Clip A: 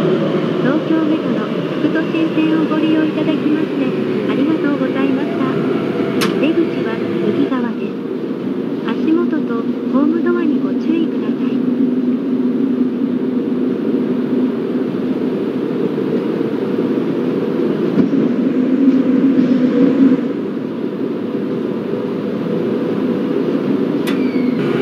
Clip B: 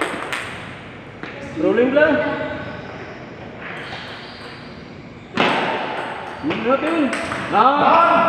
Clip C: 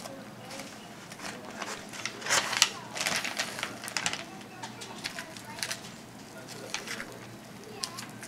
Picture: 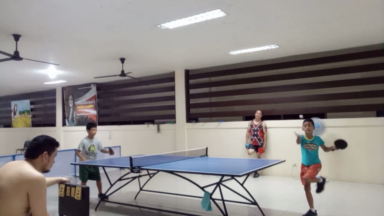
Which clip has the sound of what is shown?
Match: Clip B